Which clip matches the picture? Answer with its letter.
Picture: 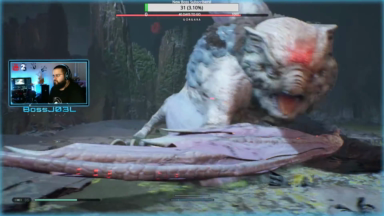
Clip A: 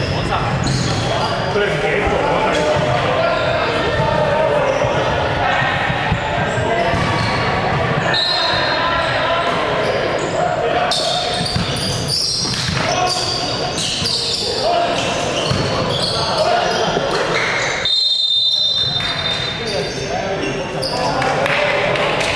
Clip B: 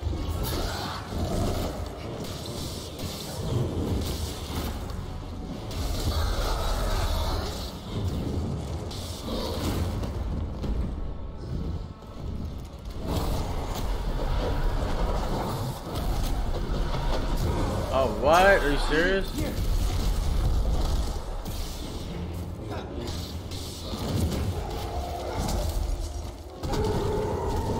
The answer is B